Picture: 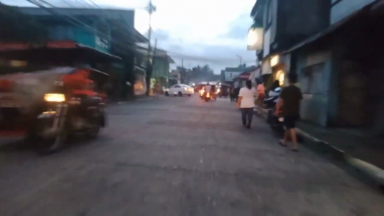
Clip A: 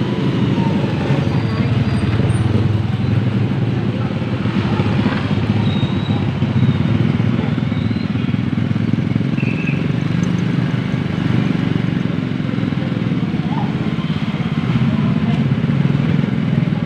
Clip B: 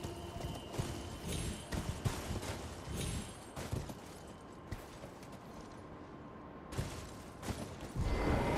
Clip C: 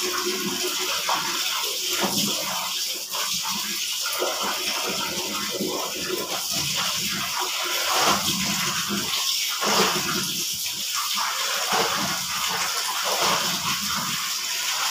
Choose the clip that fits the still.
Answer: A